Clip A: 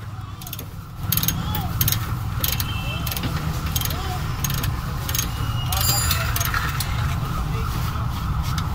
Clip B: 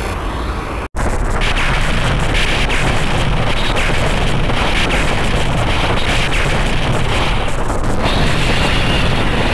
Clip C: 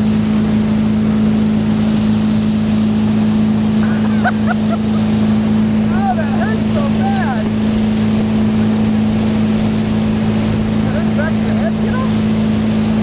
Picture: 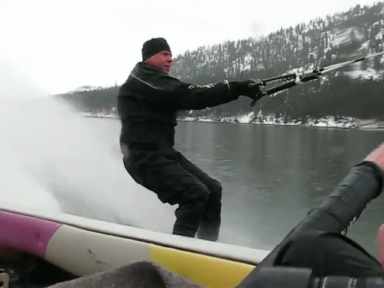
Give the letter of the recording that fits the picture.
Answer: C